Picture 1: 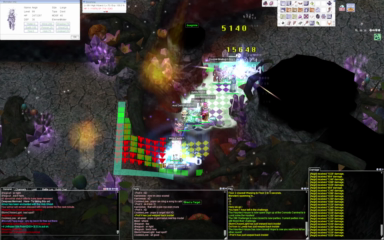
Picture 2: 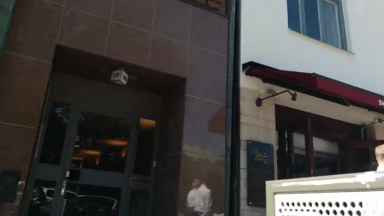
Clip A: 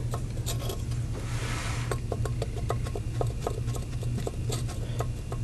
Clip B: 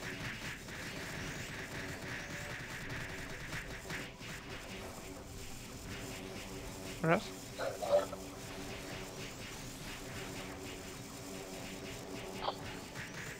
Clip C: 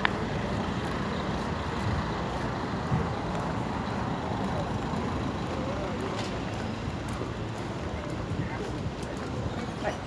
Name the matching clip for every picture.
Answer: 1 B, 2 C